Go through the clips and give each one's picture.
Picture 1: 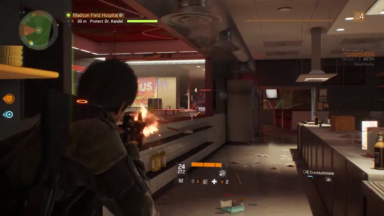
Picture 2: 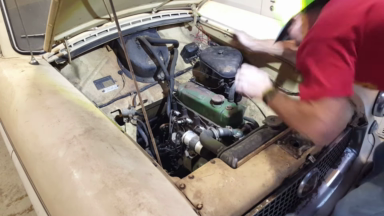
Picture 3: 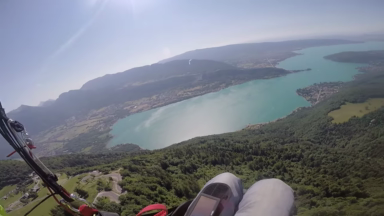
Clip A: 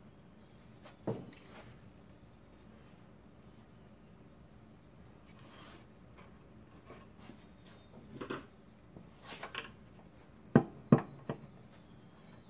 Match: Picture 2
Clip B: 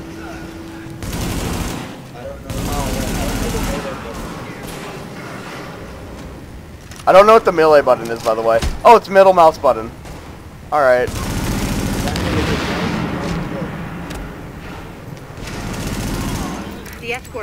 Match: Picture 1